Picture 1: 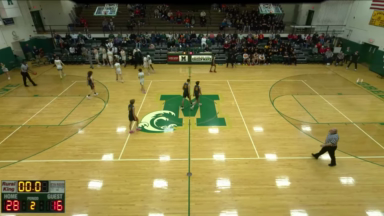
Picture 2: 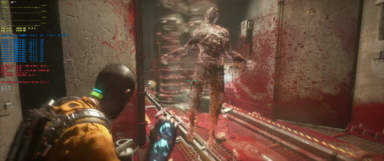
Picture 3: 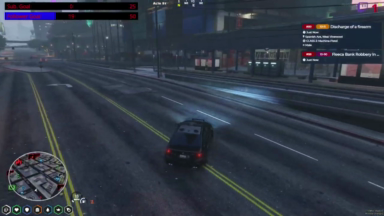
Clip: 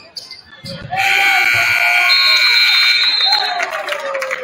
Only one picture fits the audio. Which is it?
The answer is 1